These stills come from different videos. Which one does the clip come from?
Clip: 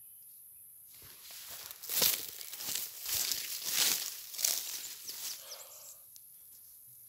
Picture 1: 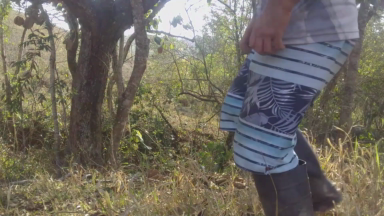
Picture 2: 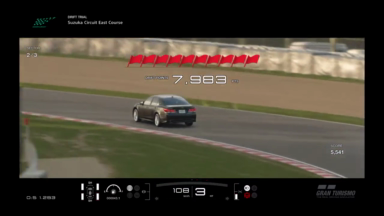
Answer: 1